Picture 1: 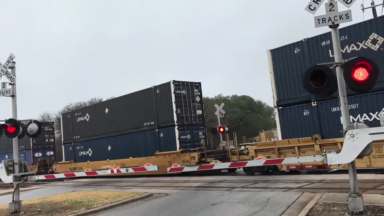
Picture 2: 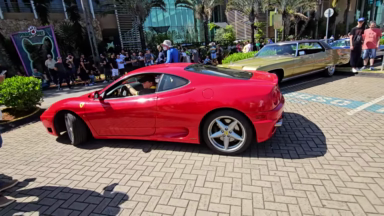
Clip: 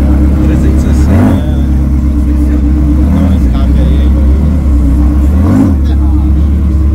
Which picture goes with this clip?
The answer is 2